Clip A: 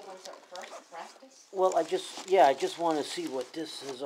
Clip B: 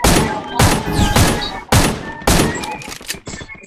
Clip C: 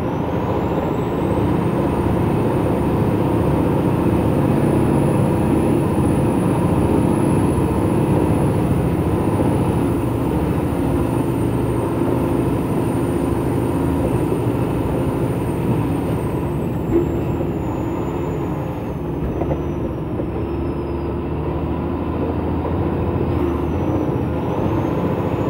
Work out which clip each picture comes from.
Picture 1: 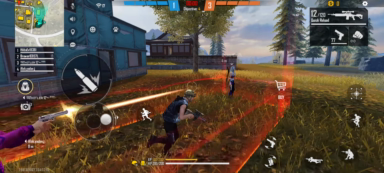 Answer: B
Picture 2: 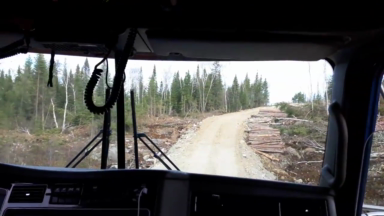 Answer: C